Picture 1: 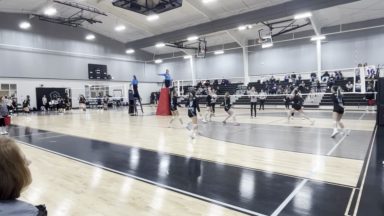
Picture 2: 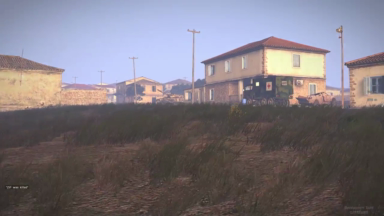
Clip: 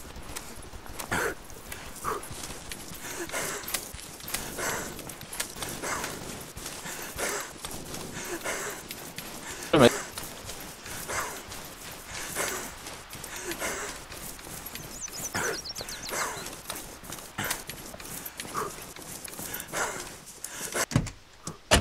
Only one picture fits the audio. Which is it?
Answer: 2